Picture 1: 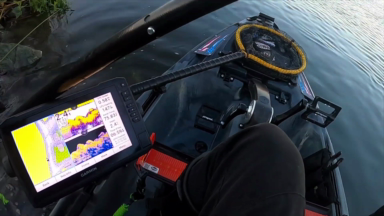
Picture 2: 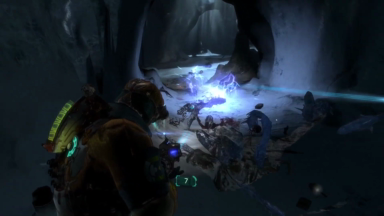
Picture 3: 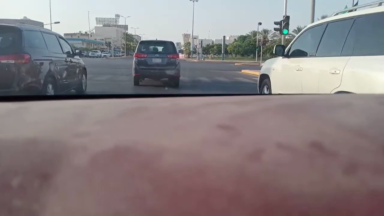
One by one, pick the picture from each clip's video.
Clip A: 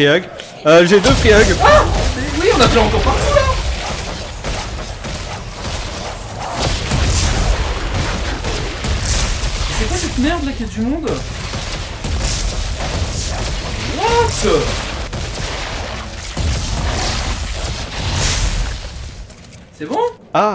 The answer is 2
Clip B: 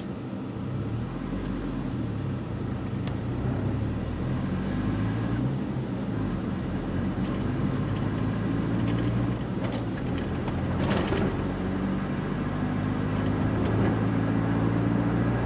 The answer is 3